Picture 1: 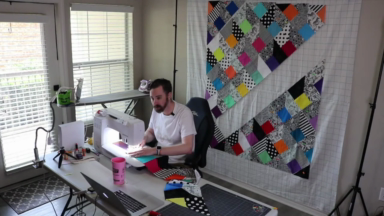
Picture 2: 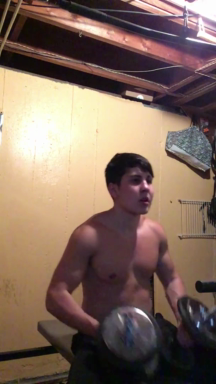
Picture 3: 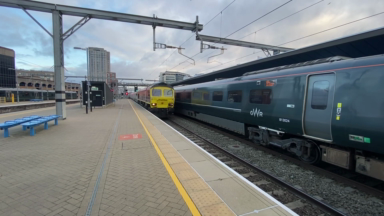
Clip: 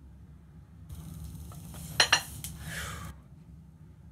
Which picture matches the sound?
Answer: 2